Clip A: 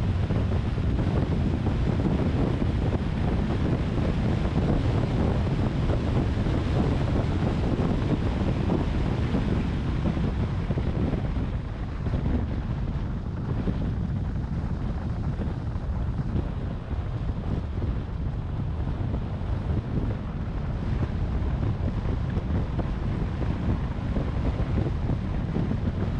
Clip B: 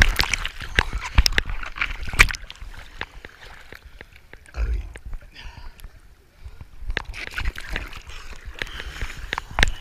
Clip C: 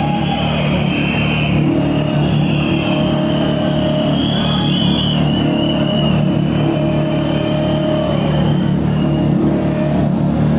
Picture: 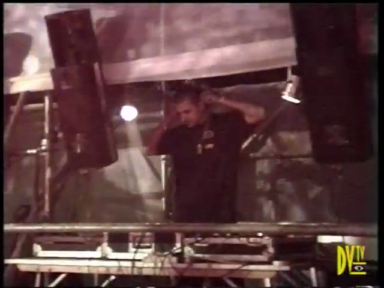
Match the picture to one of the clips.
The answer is C